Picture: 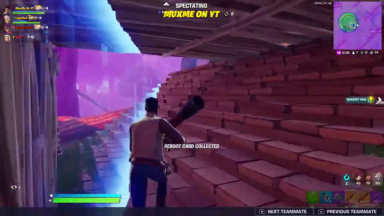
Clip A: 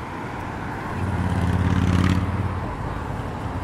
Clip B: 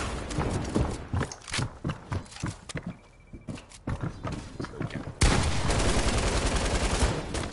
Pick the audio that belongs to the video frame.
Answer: B